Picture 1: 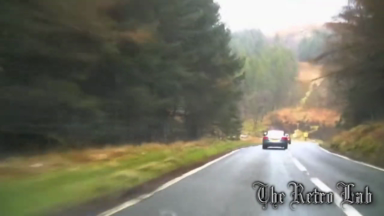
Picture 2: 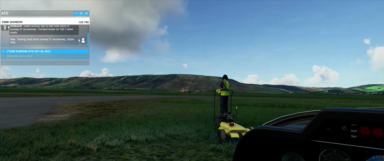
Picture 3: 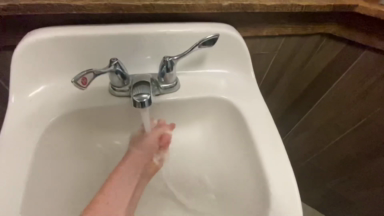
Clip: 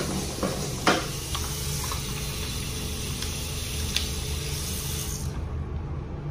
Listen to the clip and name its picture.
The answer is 3